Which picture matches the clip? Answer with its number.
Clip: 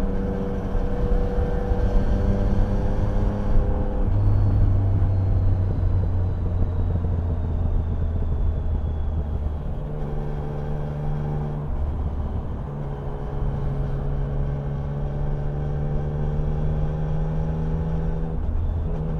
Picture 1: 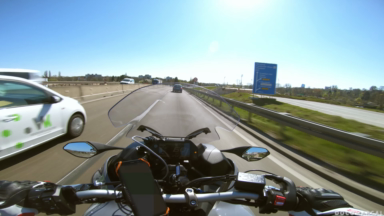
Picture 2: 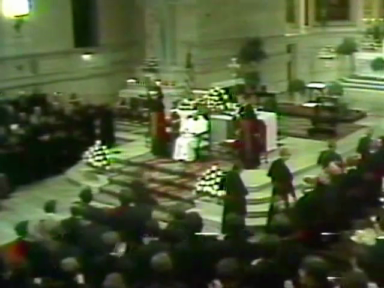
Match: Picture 1